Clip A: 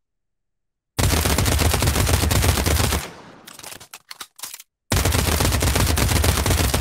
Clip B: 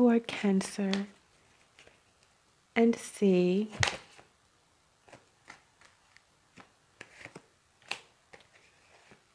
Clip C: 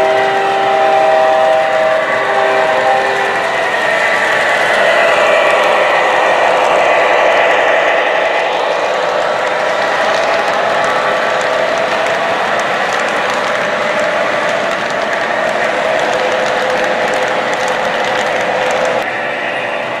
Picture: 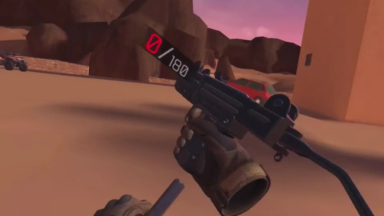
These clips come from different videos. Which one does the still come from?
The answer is A